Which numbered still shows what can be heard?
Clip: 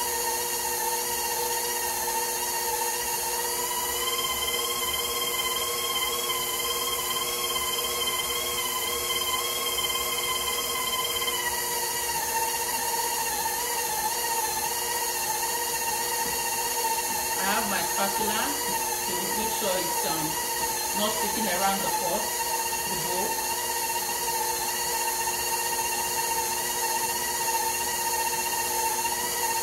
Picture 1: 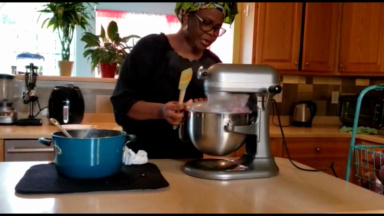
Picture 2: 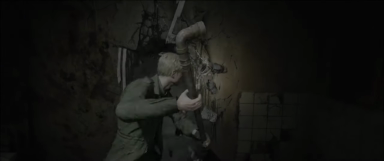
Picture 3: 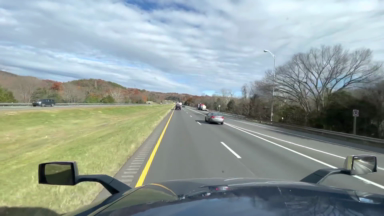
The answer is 1